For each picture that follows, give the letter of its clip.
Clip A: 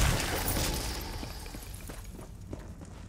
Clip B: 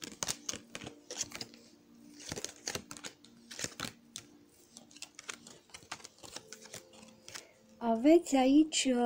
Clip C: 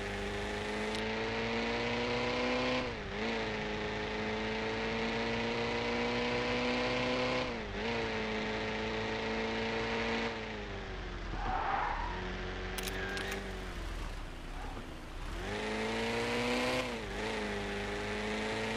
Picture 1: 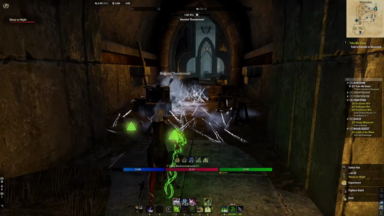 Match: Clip A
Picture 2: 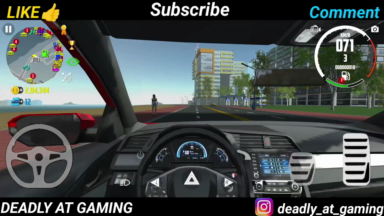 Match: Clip C